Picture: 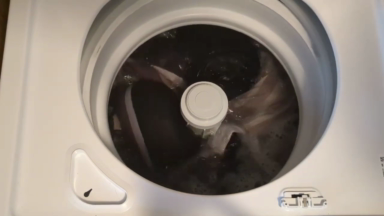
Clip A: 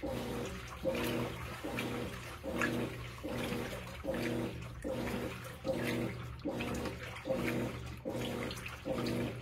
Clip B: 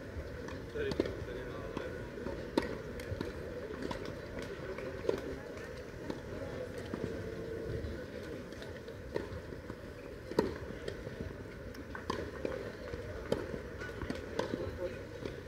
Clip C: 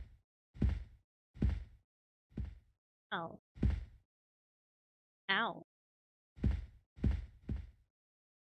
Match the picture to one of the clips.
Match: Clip A